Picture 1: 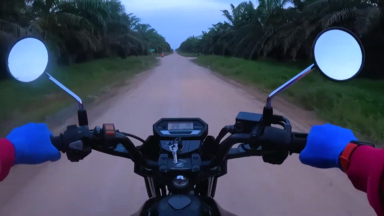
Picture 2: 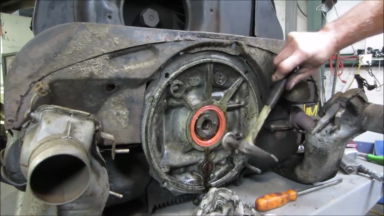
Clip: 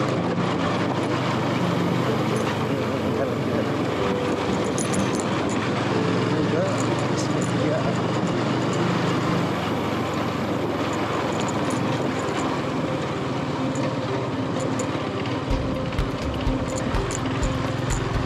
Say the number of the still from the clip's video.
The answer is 1